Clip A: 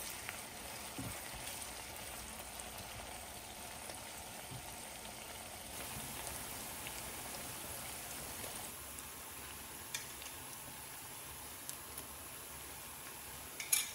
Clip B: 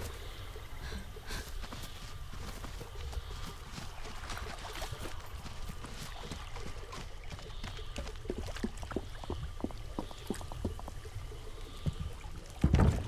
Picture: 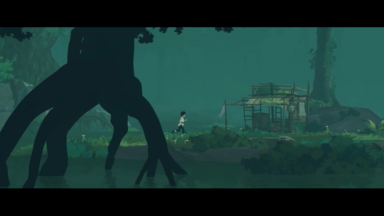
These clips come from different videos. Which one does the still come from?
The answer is B